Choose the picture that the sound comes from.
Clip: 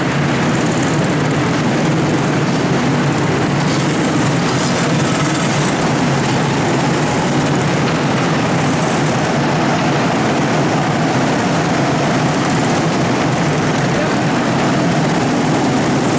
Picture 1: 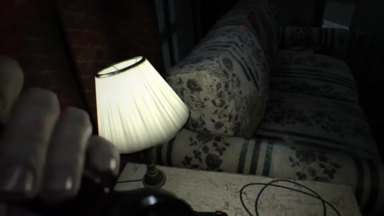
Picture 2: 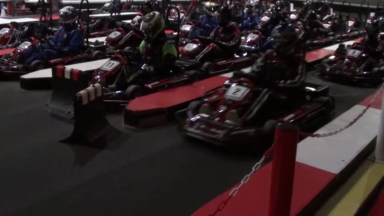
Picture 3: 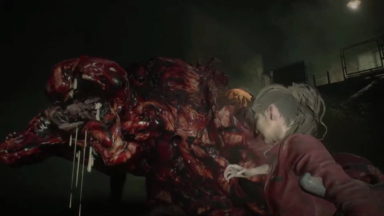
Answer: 2